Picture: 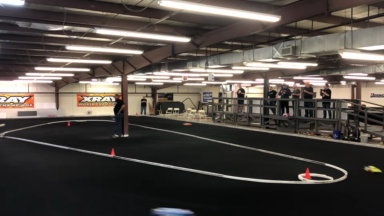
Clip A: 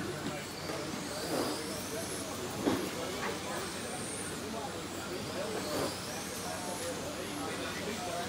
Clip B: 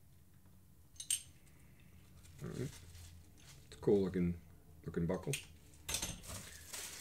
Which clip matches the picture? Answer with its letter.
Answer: A